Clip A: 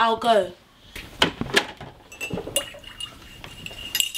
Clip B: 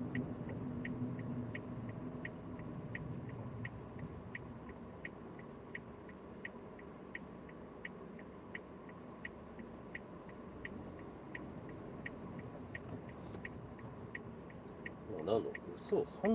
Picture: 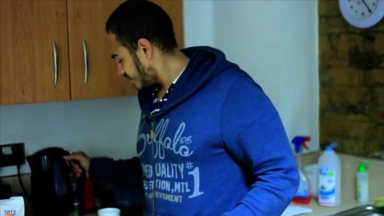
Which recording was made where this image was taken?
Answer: A